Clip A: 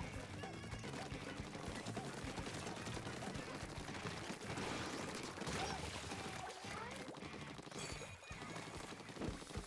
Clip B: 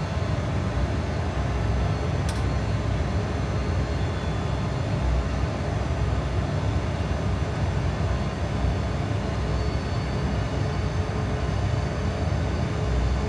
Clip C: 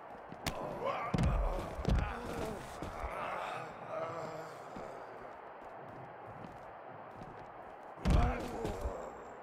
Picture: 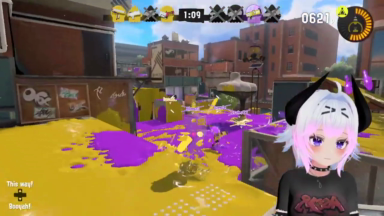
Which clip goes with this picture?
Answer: A